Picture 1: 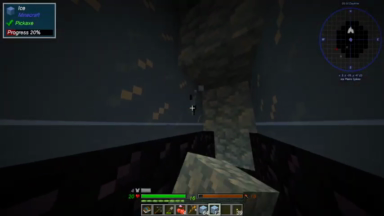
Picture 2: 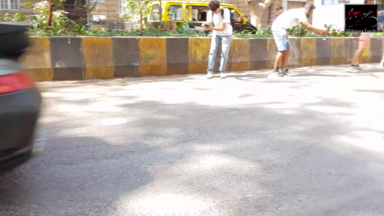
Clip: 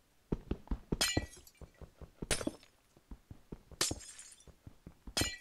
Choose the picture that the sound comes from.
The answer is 1